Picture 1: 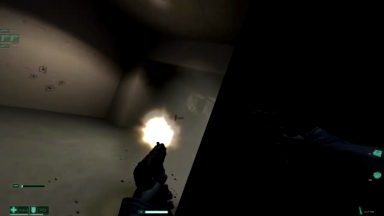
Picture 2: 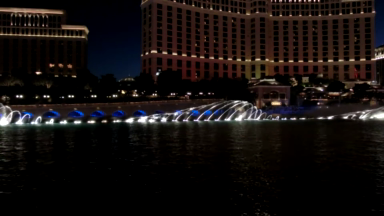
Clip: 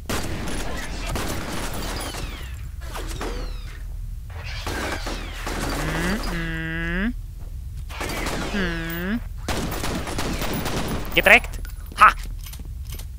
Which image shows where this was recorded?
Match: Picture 1